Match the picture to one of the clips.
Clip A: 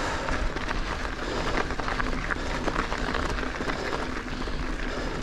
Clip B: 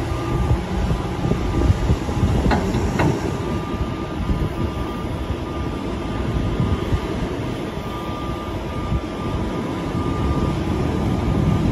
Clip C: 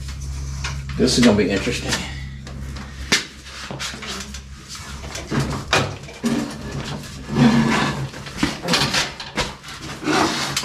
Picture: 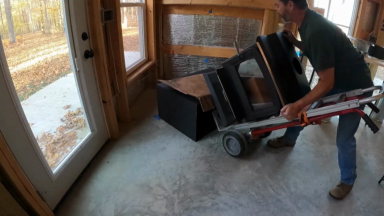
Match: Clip C